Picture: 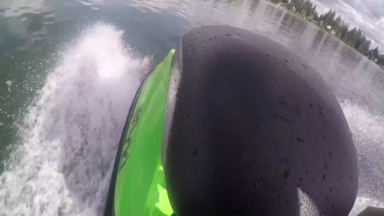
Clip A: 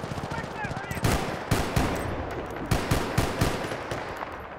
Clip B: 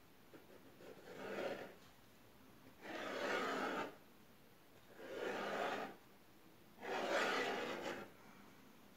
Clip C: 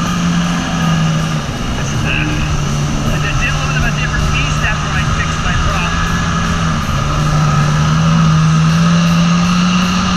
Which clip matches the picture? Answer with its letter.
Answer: C